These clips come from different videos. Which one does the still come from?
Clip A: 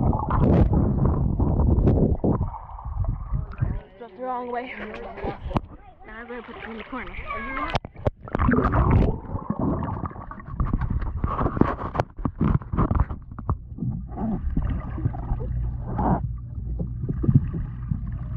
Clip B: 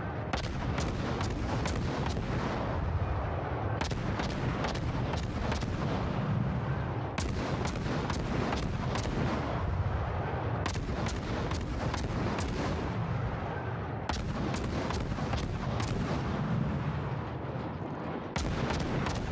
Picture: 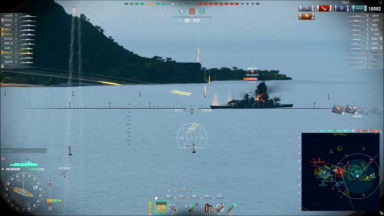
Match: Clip B